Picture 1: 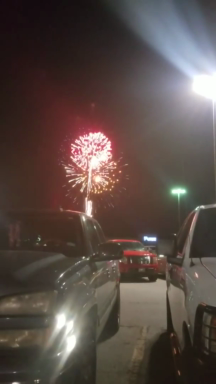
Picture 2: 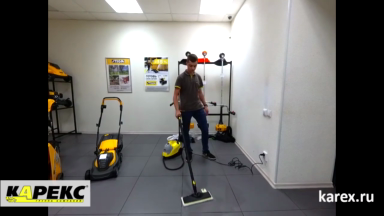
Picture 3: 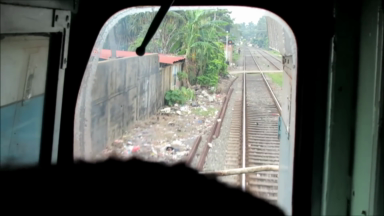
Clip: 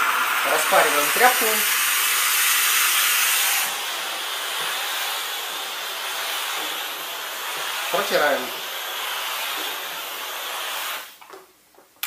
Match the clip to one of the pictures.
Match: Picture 2